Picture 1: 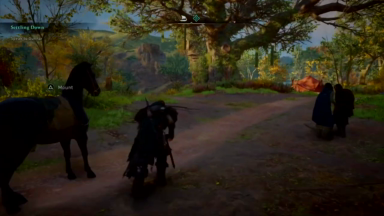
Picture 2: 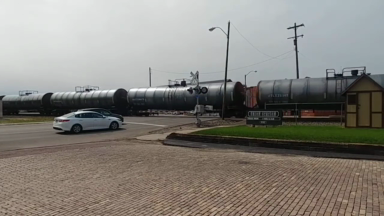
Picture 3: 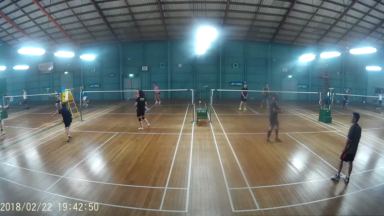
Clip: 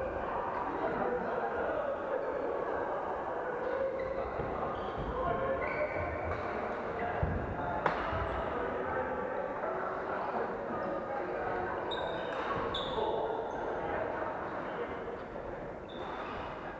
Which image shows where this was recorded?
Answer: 3